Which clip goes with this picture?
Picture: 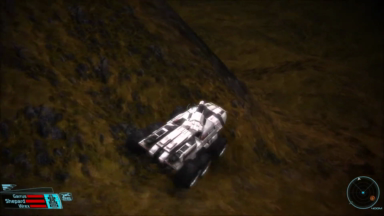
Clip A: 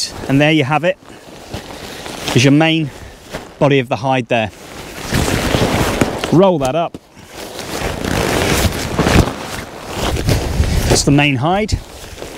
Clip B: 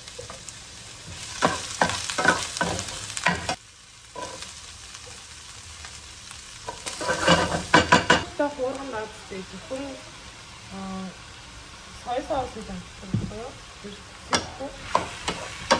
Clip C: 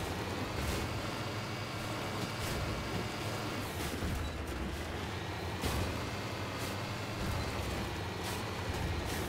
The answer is C